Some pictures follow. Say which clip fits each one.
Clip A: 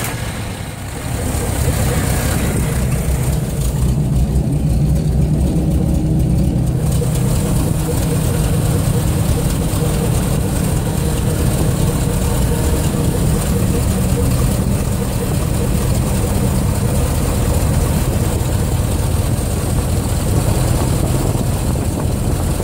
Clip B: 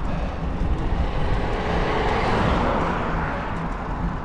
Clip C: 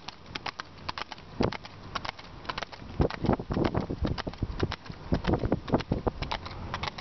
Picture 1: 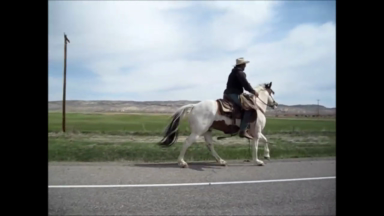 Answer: C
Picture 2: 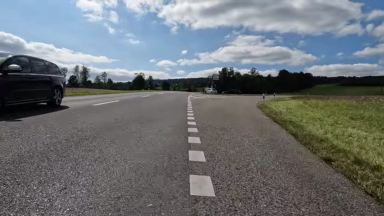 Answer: B